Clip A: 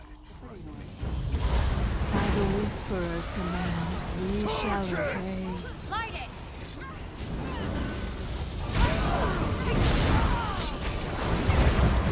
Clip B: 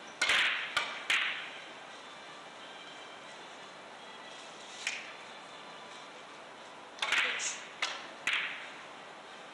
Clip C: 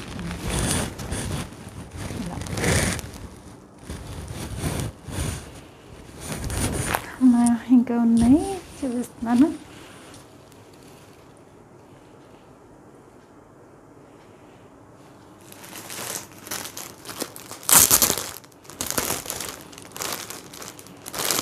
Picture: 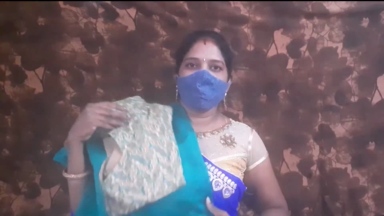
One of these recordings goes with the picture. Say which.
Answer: C